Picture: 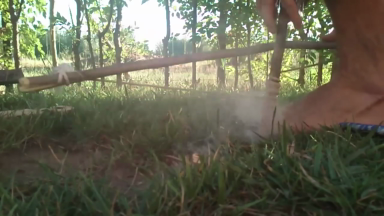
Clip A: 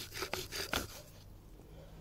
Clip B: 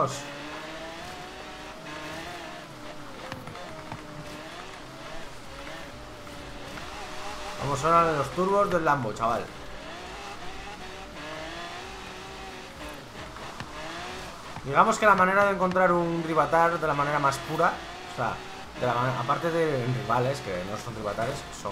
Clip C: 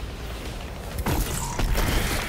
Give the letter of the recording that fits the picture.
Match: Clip A